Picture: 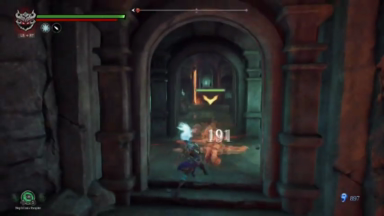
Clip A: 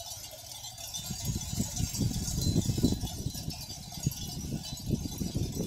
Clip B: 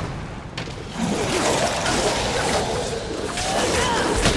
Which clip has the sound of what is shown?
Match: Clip B